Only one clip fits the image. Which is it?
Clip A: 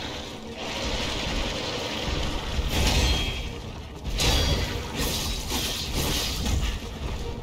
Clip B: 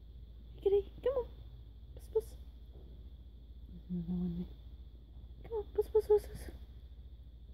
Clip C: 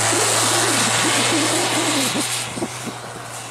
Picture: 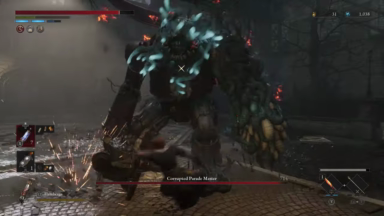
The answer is A